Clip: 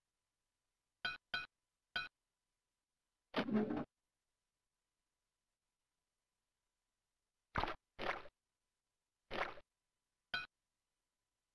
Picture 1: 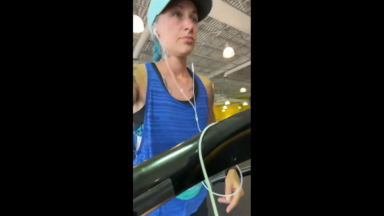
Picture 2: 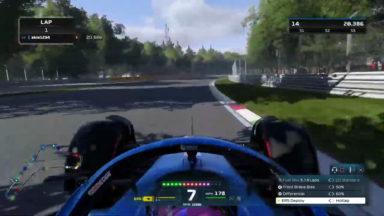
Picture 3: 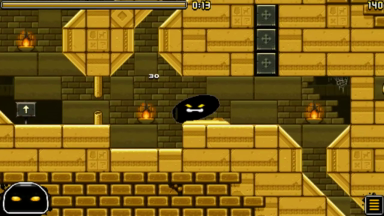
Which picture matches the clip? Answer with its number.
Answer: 3